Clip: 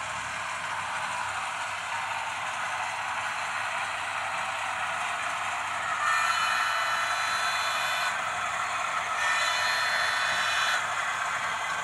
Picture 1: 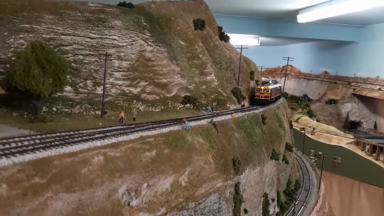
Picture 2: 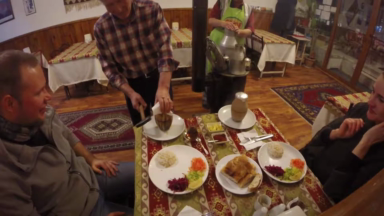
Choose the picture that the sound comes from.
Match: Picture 1